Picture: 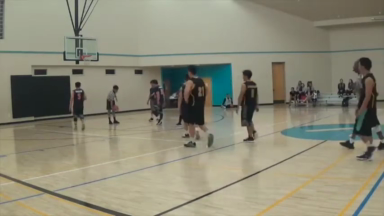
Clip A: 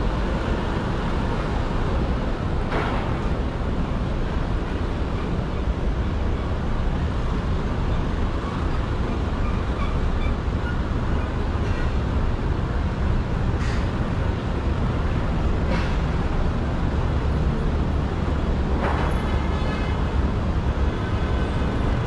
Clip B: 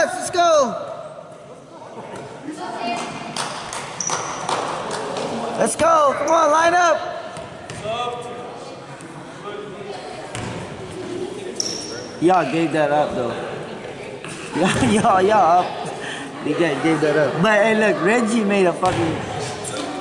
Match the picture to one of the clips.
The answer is B